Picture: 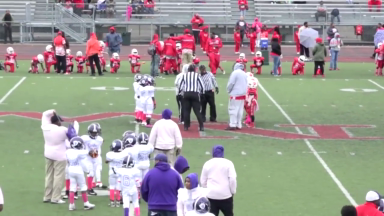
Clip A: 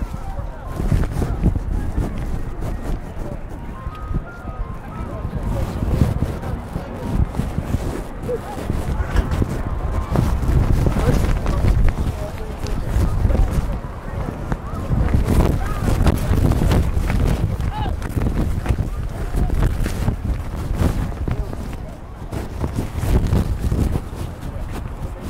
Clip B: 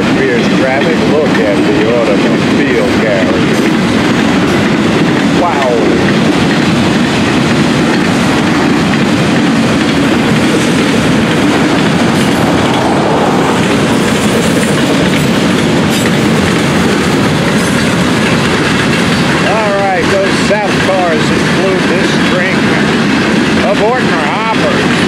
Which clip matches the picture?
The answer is A